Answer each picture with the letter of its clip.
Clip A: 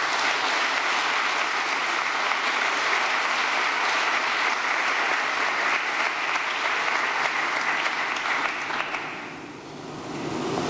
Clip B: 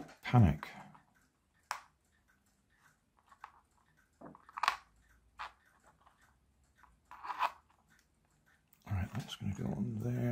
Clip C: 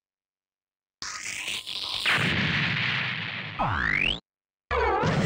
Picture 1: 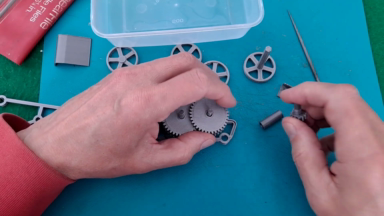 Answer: B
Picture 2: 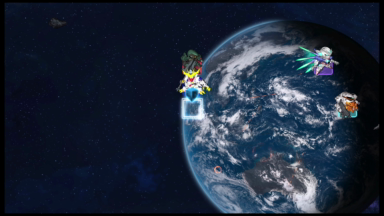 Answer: C